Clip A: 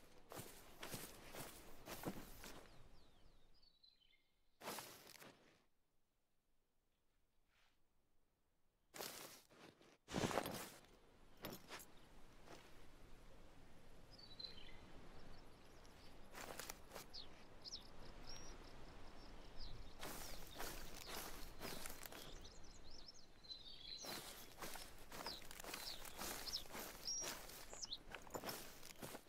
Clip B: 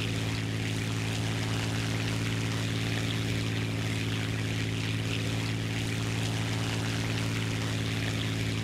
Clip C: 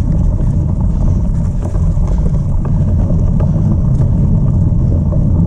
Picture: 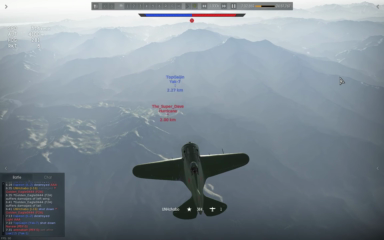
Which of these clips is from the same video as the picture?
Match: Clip B